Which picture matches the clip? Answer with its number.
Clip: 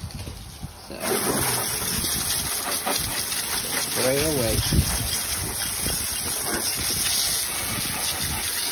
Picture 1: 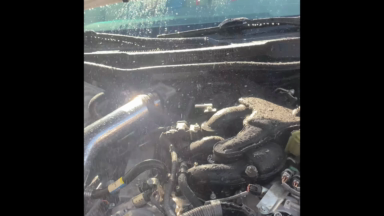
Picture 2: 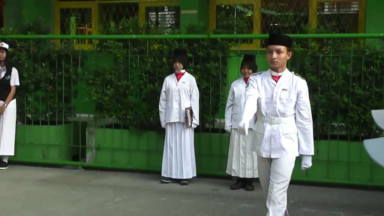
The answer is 1